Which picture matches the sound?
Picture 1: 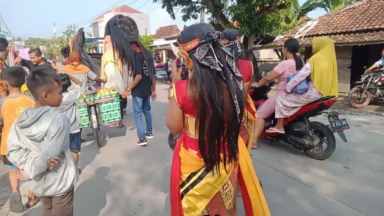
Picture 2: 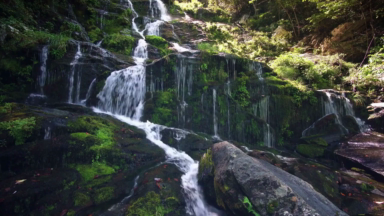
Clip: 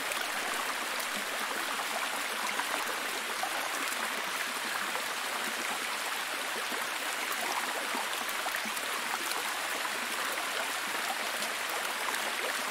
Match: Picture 2